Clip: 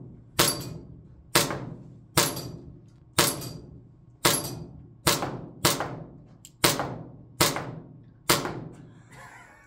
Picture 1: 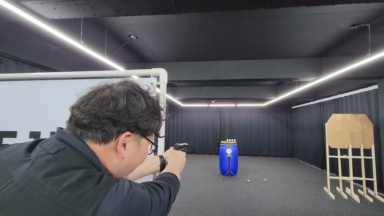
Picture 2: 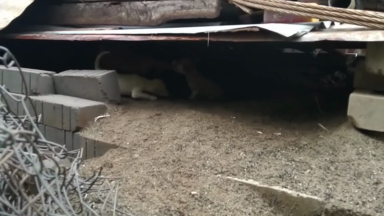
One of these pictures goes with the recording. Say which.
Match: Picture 1